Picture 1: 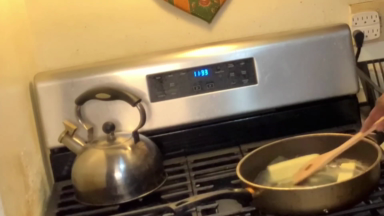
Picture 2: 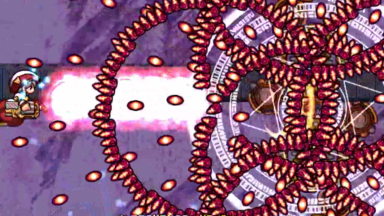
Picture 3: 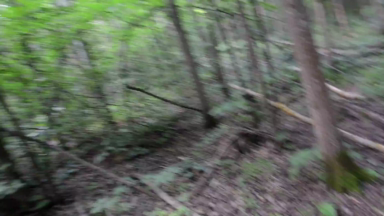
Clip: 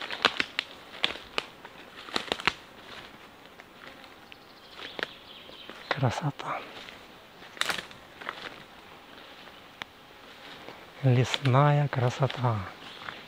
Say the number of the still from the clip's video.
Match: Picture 3